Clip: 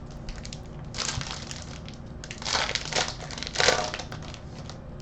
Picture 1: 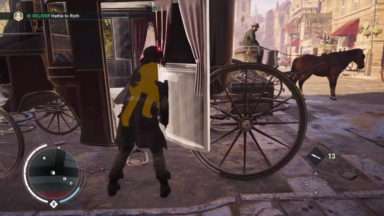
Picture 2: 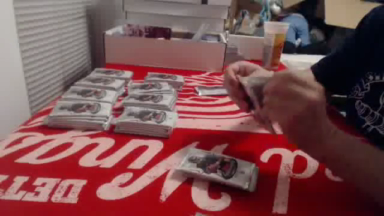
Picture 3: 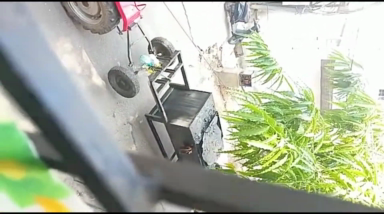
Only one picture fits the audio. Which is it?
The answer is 2